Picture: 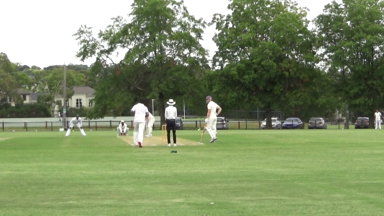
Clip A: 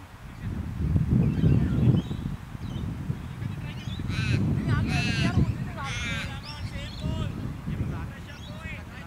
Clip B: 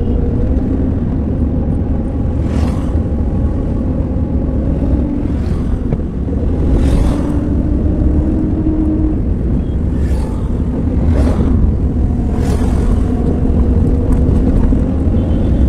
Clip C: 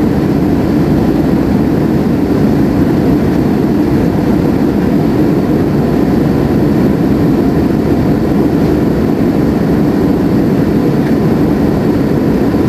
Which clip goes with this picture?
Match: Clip A